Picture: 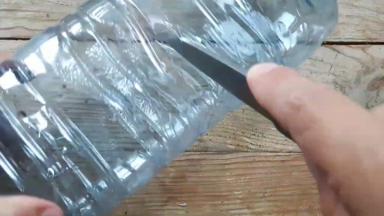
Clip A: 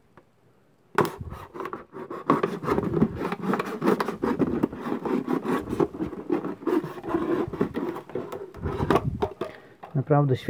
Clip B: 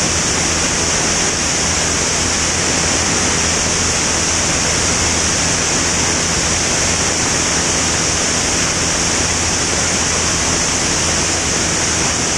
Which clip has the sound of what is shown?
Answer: A